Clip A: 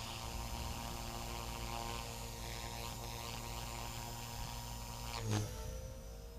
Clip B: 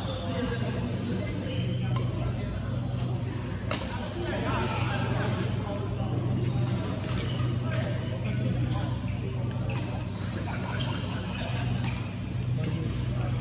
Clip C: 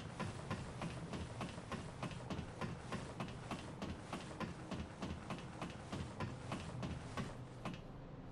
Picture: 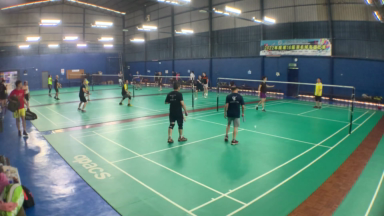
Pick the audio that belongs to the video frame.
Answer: B